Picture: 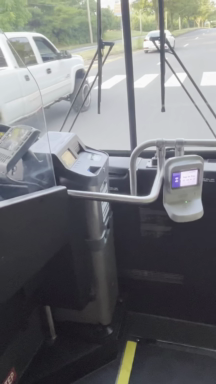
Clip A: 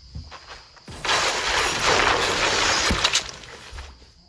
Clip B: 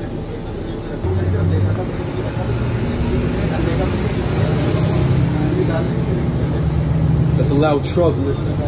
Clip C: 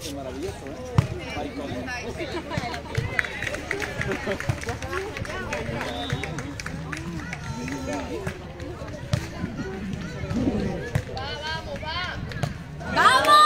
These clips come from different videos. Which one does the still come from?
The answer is B